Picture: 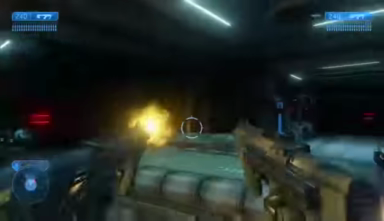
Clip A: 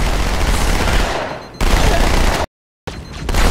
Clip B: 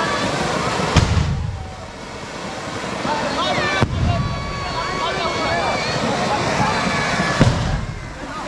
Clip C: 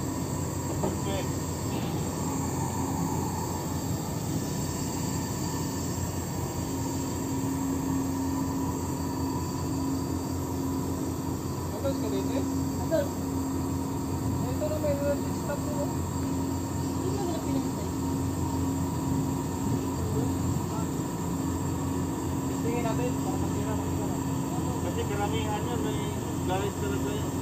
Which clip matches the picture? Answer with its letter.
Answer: A